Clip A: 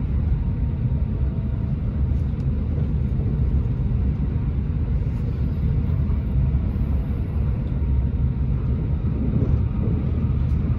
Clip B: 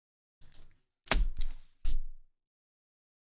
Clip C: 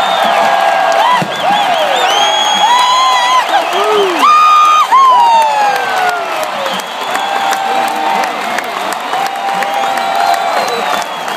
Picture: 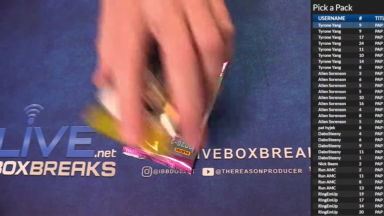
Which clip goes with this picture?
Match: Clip B